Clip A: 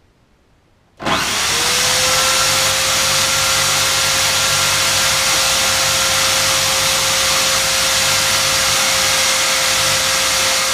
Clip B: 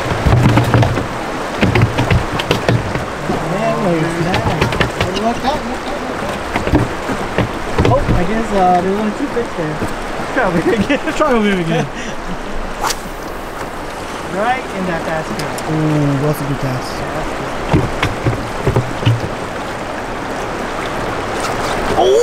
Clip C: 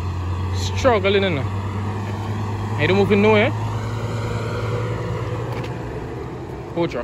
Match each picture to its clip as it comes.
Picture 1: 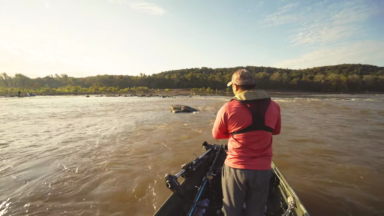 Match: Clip B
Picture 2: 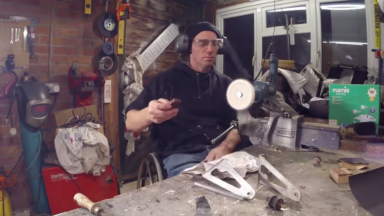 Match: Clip A